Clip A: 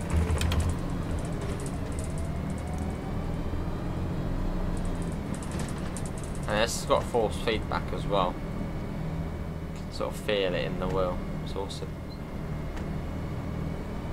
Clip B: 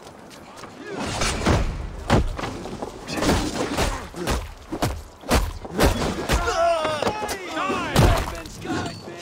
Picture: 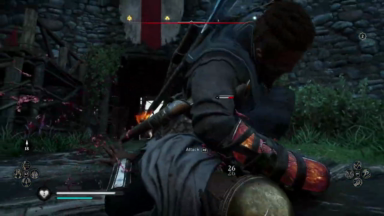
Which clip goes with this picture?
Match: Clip B